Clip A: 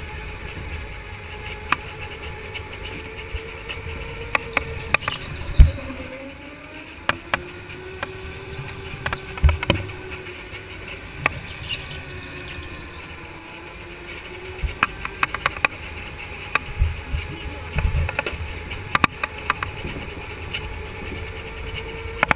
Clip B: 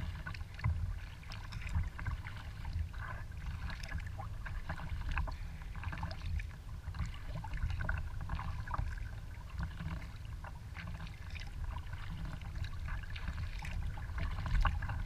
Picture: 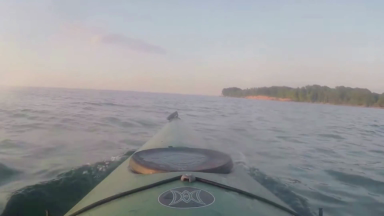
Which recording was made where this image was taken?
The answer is B